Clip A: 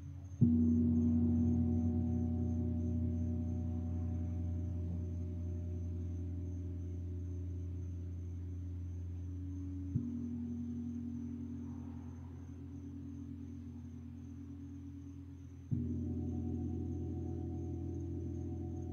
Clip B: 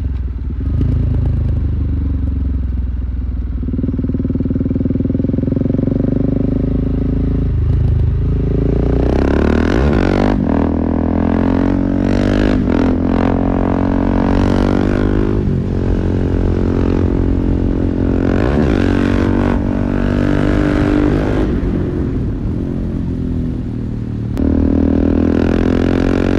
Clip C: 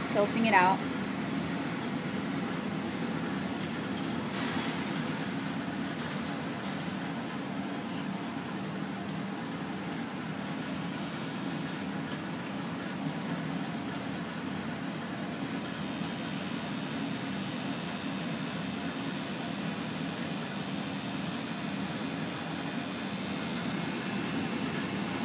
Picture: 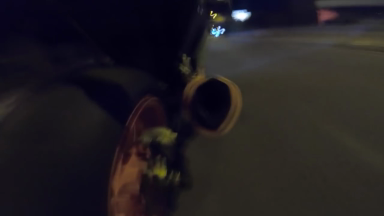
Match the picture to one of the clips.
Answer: B